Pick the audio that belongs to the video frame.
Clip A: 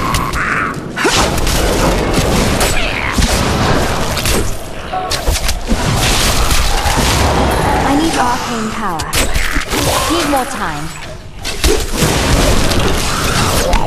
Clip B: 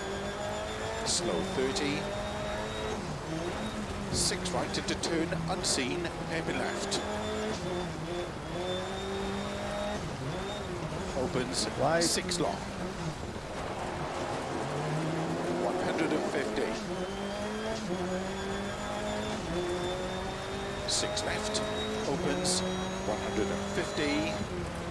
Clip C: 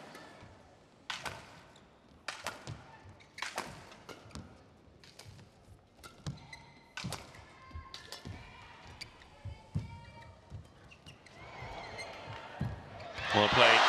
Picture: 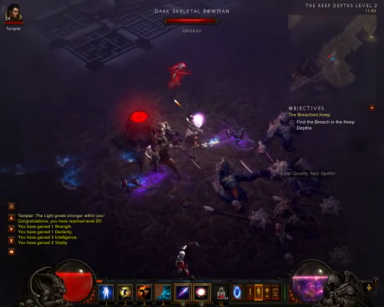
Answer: A